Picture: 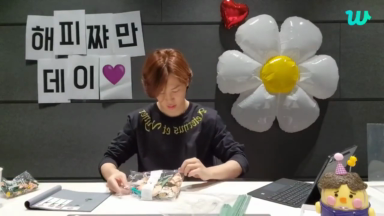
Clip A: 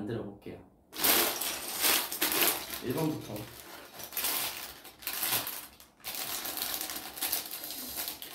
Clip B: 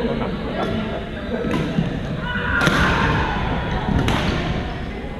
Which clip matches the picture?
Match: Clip A